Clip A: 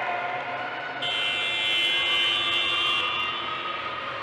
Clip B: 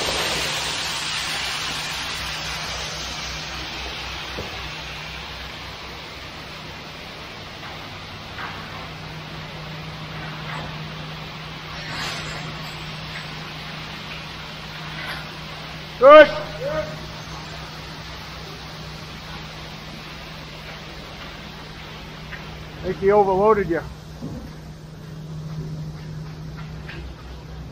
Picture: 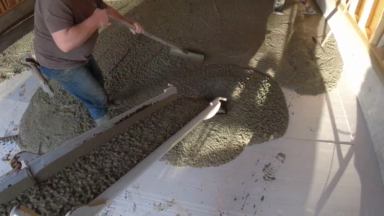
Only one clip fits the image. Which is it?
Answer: B